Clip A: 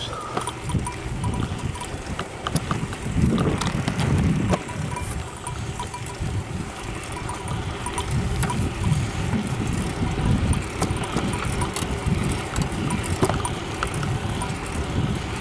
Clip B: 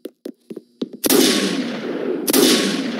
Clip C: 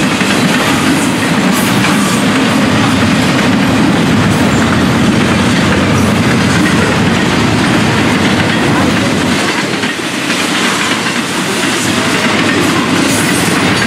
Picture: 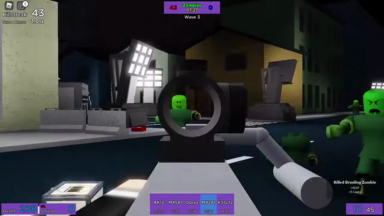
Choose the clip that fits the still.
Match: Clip B